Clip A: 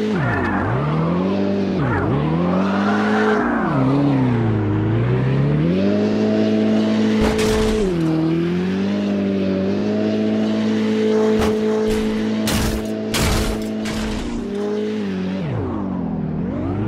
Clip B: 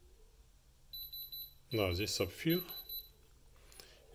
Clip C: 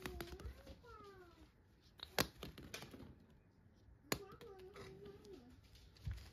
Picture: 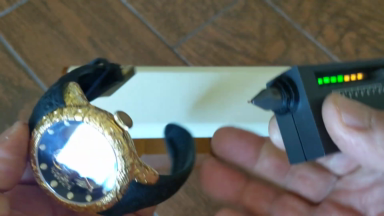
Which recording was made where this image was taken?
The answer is B